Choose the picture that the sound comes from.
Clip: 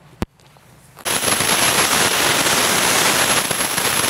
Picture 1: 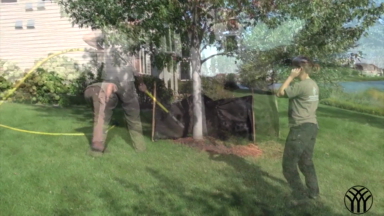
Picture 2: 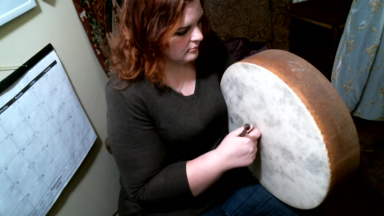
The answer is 1